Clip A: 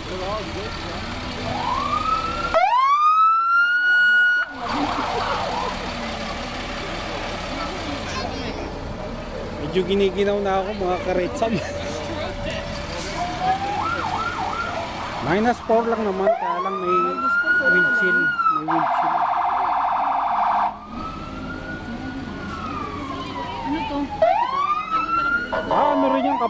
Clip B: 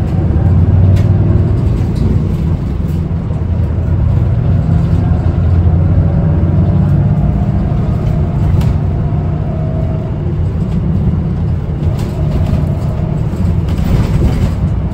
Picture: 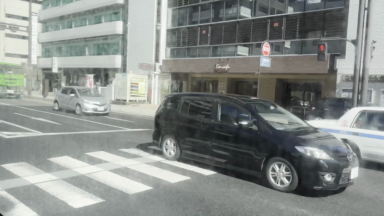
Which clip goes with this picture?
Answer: B